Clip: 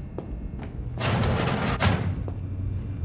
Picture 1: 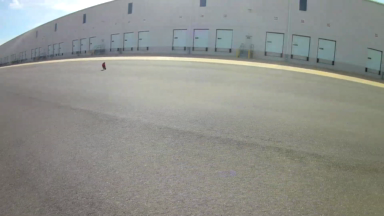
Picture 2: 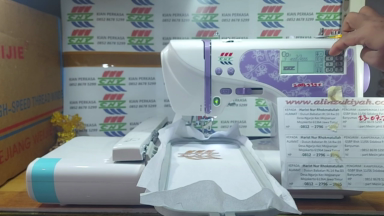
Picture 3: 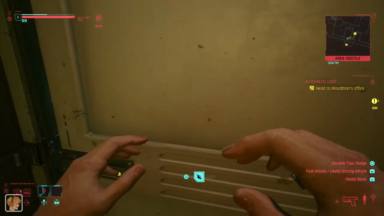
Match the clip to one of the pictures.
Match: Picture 3